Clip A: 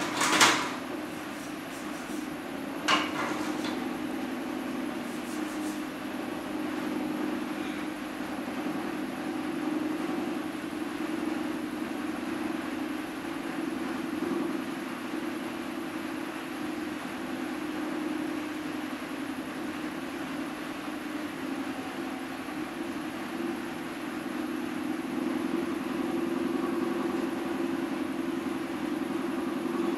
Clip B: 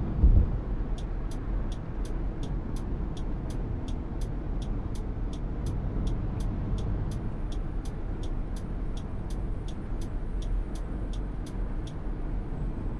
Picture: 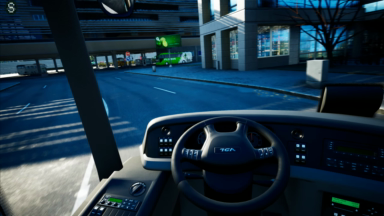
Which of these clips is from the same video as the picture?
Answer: B